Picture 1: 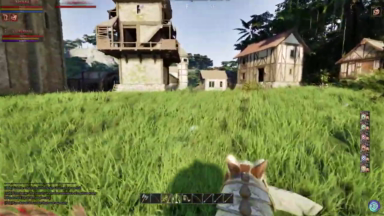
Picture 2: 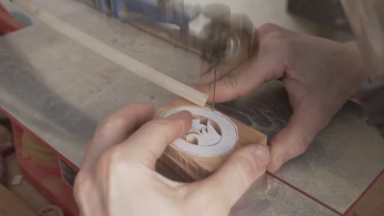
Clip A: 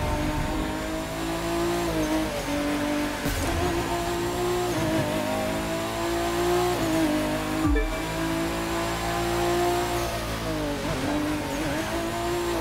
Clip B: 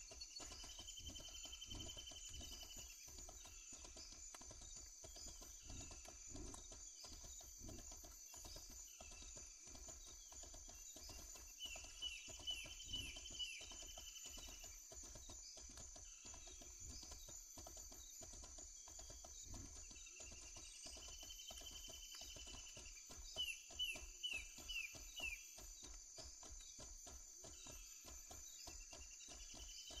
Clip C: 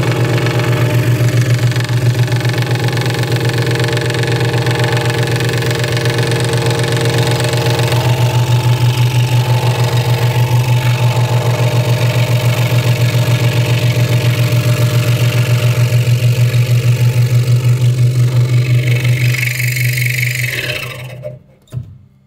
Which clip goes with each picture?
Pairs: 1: B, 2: C